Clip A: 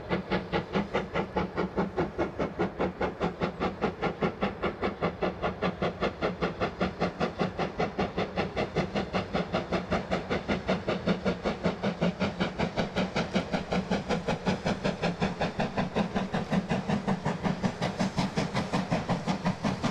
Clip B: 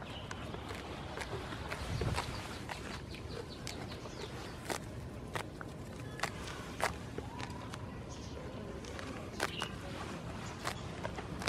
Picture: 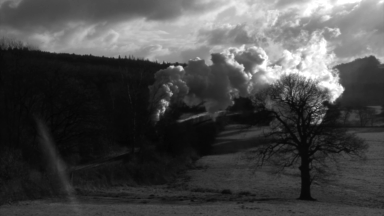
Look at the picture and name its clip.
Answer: A